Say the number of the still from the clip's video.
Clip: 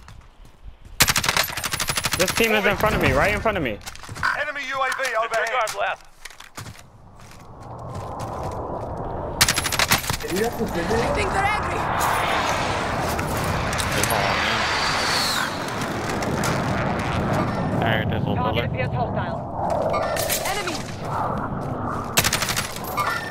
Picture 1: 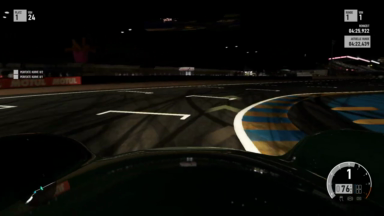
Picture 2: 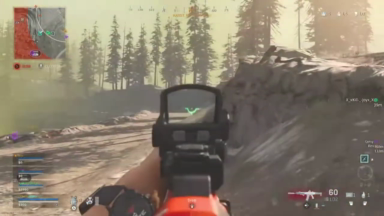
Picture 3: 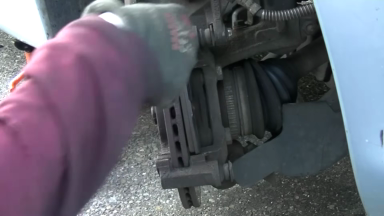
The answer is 2